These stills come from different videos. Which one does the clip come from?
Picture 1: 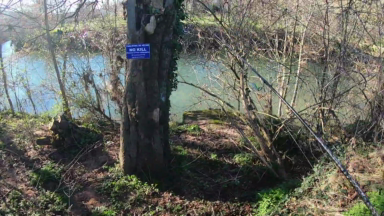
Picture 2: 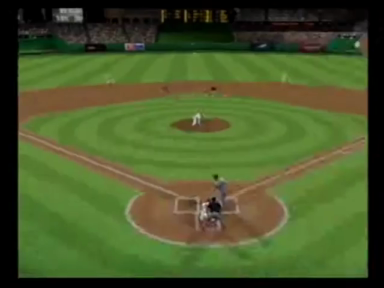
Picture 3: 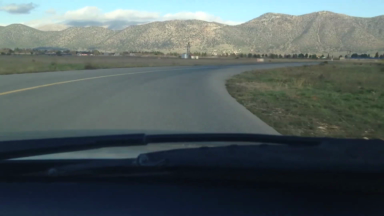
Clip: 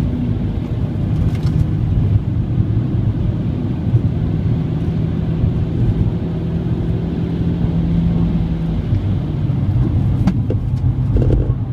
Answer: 3